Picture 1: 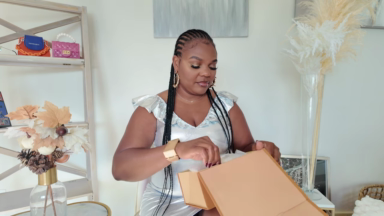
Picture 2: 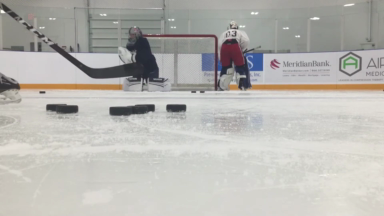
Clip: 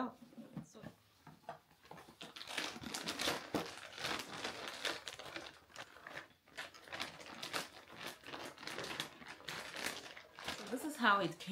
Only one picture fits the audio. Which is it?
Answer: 1